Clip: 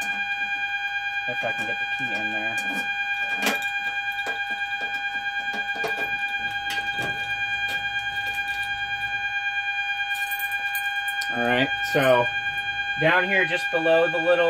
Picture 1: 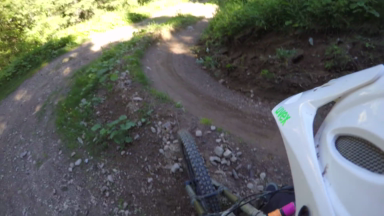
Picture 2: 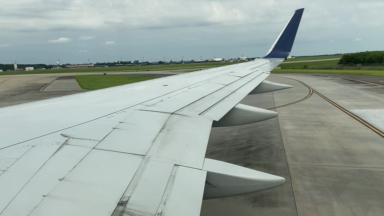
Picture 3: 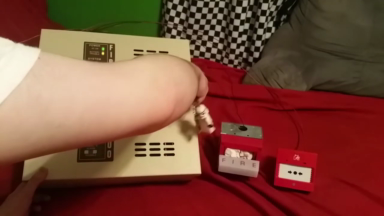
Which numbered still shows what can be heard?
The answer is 3